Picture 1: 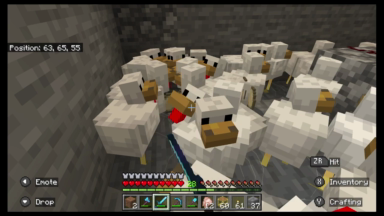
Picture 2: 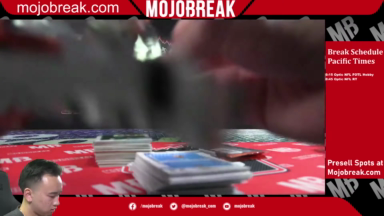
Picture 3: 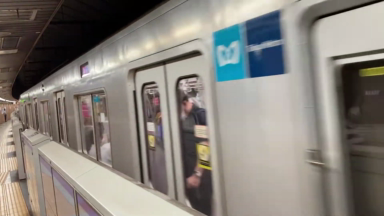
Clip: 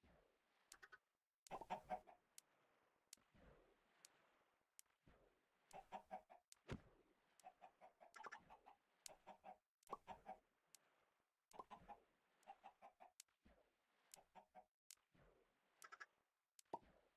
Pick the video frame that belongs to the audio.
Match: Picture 1